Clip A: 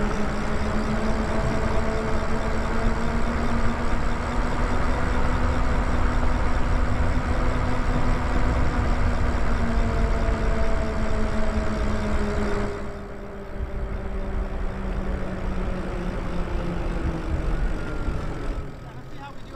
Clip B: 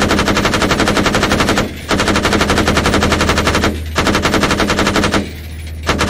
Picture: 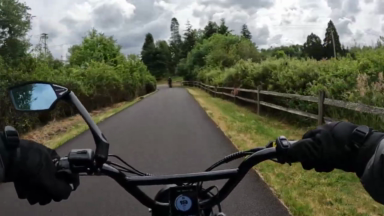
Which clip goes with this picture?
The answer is A